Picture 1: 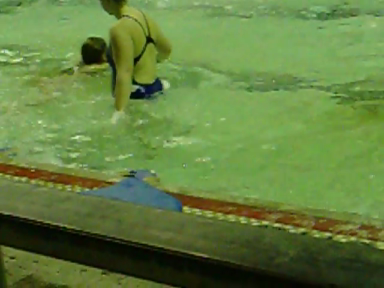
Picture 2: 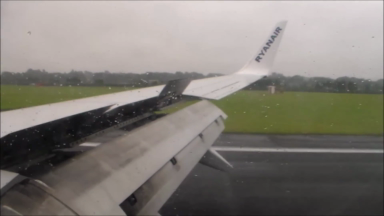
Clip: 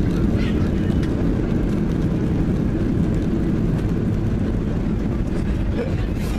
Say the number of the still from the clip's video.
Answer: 2